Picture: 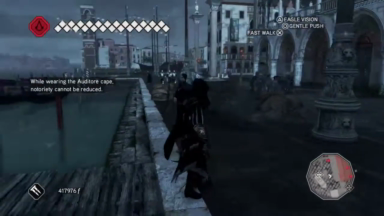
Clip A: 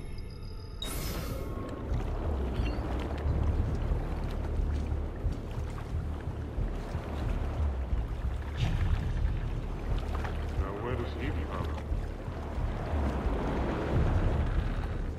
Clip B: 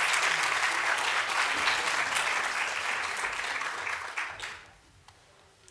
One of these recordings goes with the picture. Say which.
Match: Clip A